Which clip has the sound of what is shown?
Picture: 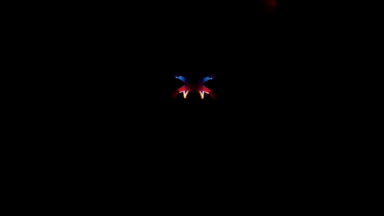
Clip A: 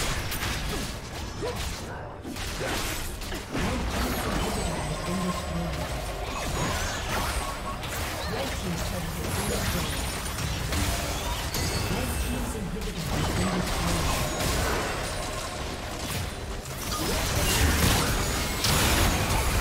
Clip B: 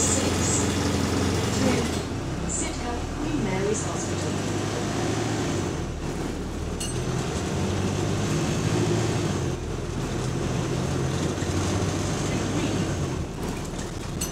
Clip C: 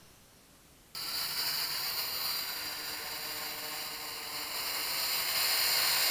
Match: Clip C